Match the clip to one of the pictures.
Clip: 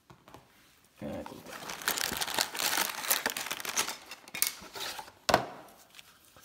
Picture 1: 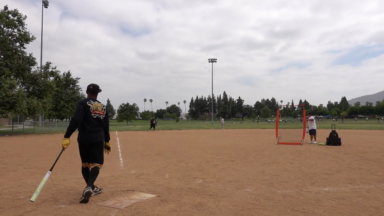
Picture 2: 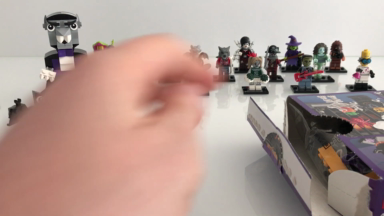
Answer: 2